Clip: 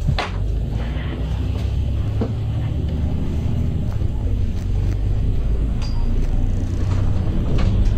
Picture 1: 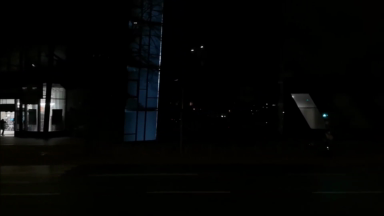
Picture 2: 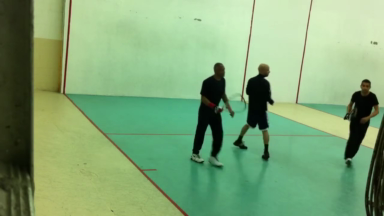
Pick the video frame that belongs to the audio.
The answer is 1